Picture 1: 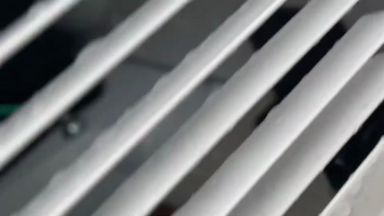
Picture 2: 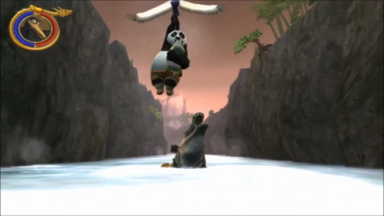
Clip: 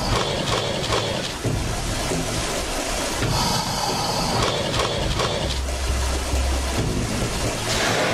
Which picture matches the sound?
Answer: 2